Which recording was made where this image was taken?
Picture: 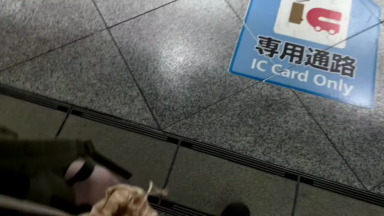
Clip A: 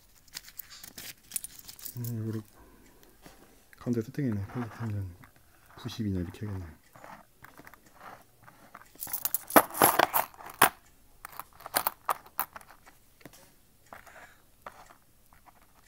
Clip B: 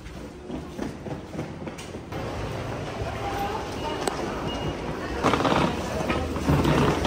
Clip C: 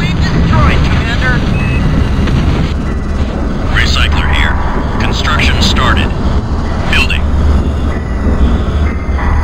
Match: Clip B